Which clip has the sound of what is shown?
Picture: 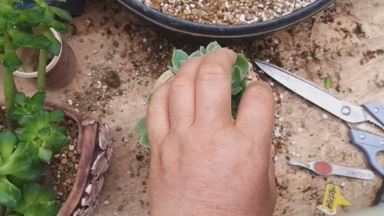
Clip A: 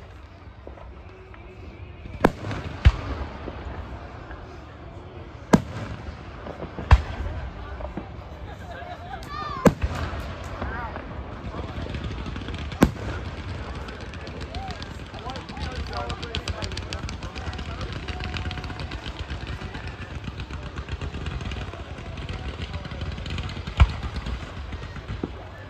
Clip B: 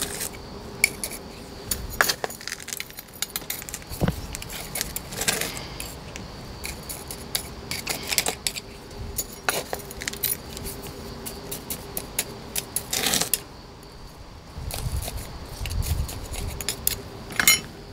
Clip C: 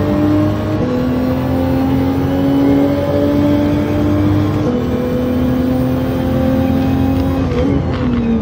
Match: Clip B